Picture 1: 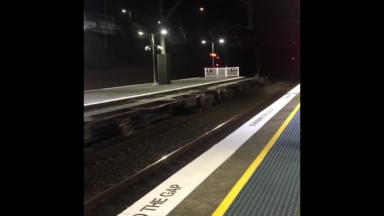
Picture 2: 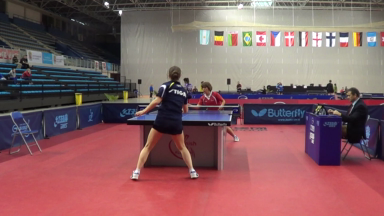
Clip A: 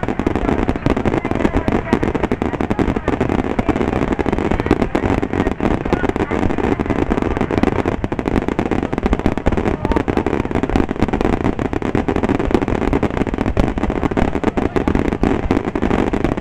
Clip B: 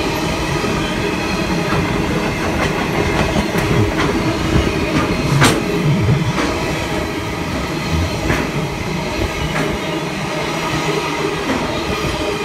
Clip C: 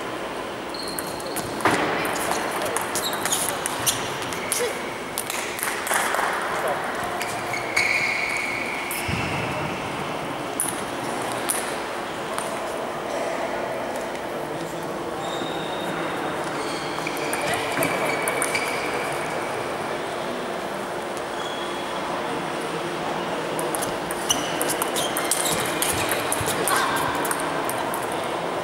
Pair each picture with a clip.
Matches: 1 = B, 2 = C